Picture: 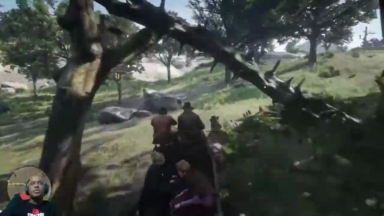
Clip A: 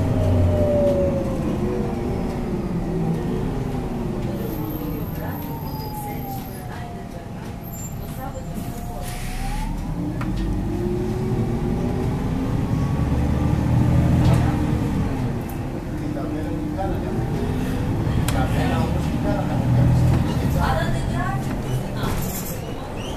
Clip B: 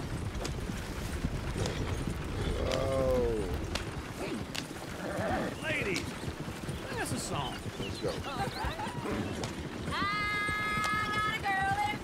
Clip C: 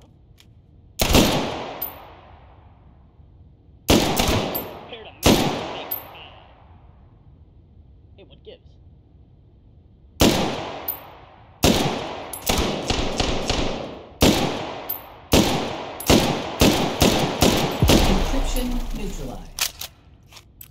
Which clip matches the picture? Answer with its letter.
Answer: B